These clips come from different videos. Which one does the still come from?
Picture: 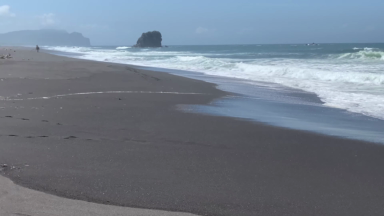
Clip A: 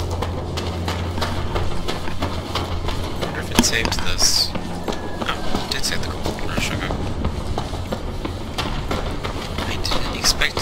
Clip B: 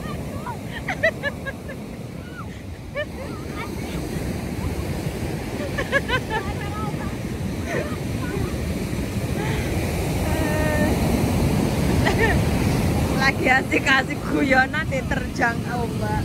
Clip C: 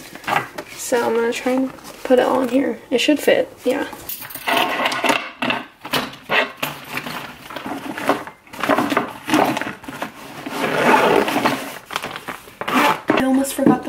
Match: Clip B